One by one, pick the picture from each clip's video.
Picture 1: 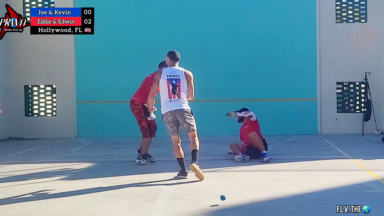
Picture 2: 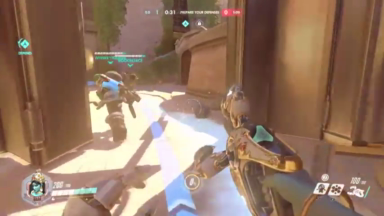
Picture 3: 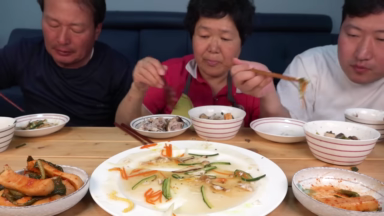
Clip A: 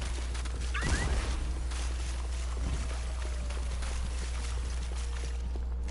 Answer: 2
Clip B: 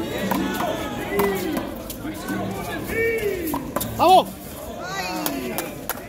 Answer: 1